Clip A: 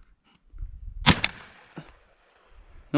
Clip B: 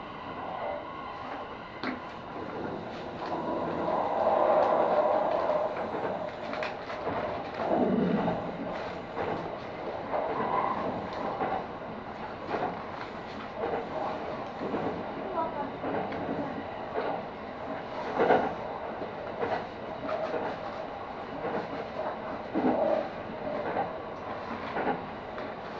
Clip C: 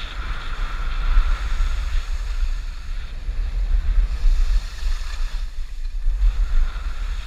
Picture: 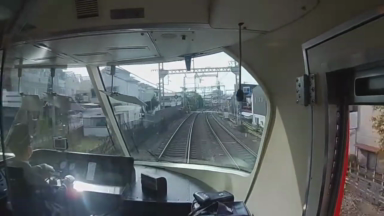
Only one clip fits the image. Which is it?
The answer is B